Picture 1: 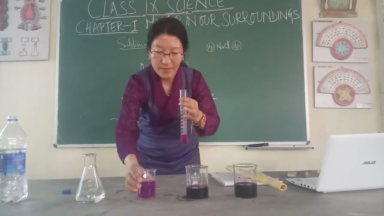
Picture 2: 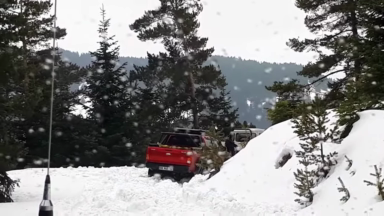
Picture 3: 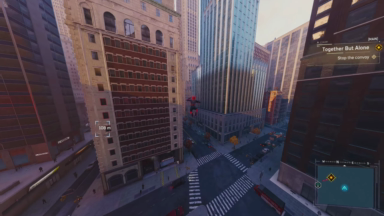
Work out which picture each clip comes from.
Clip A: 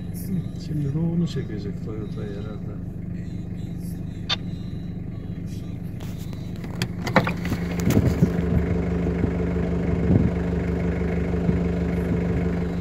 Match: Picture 2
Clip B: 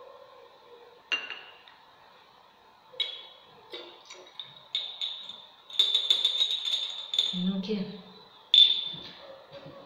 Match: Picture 1